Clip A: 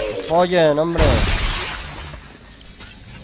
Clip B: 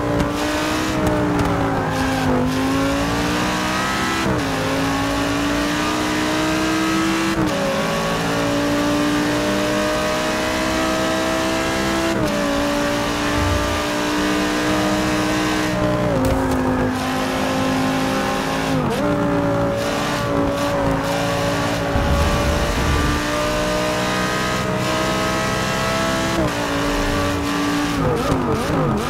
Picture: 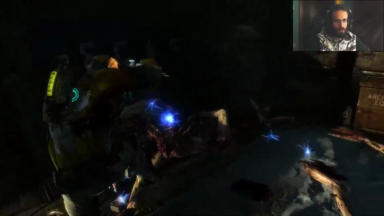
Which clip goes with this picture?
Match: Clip A